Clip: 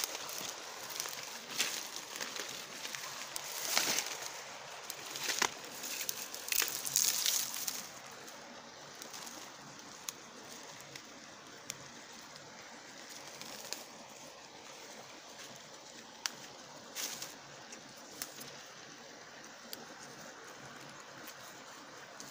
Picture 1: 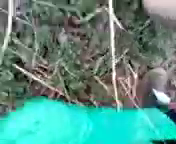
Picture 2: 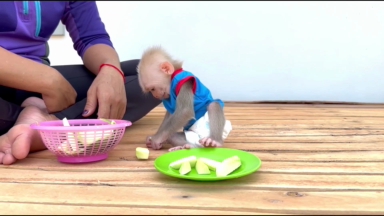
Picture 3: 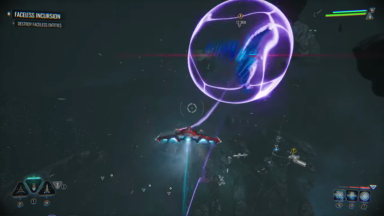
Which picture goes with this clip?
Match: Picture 1